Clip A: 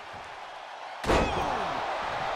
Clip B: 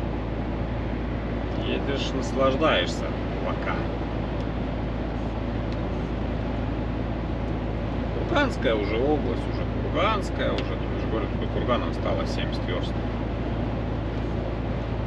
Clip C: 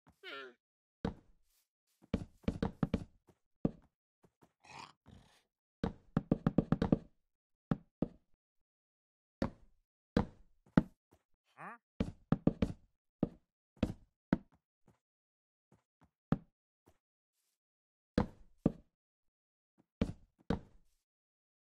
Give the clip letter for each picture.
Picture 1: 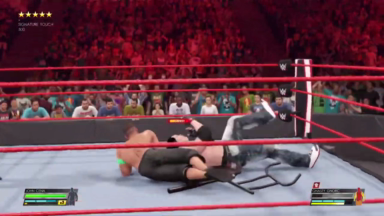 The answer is A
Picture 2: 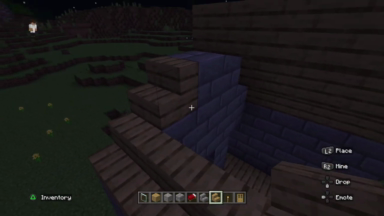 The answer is C